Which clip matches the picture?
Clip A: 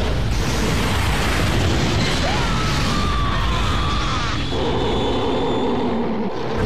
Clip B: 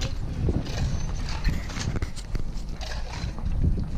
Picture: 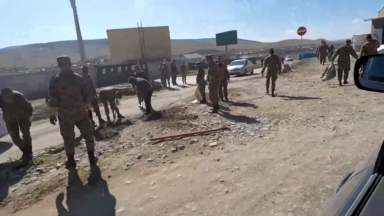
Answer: B